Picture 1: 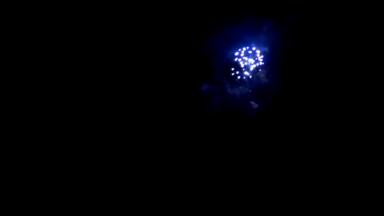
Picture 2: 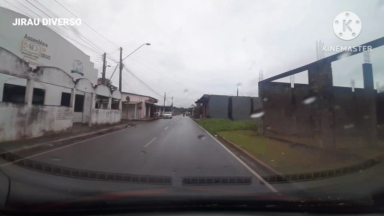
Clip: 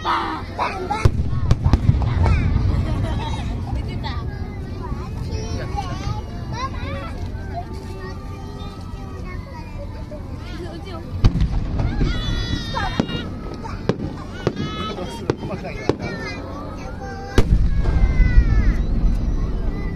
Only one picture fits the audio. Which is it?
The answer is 1